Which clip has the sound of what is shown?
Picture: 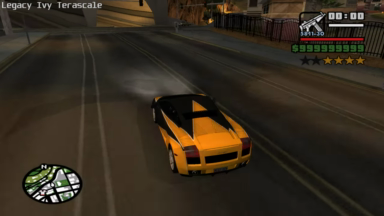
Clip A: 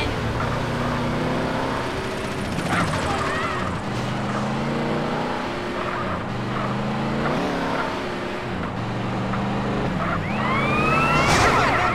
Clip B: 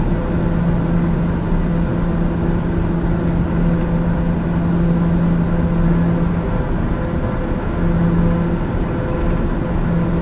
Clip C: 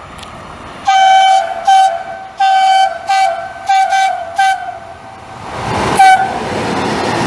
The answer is A